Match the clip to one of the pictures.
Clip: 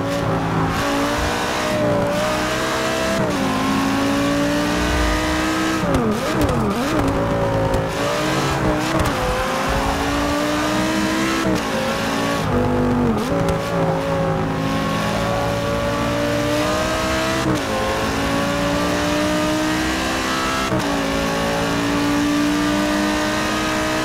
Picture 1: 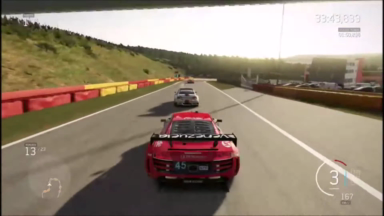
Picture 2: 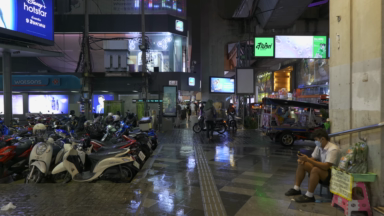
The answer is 1